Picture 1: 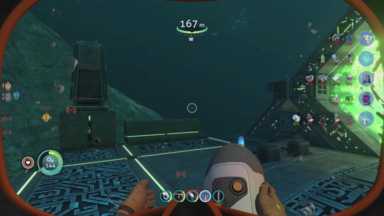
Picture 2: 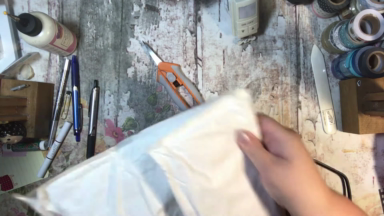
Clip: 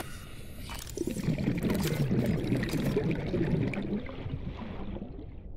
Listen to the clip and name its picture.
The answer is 1